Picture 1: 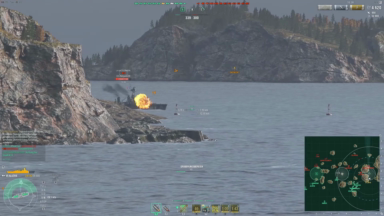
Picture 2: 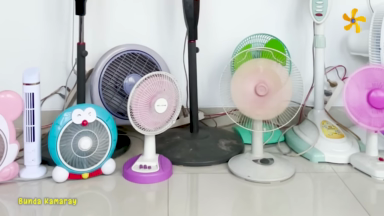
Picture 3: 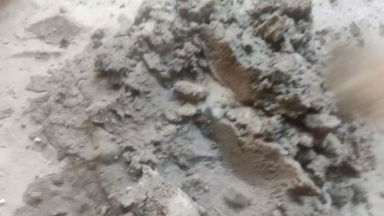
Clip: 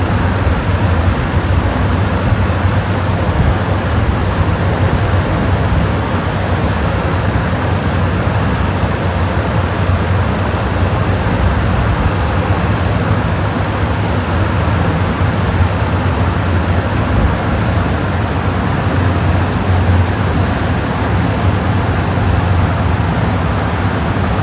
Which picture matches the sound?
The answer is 2